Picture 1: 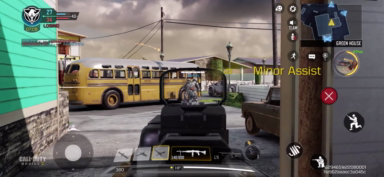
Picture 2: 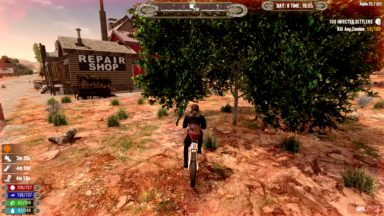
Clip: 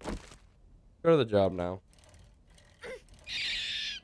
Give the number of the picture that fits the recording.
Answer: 2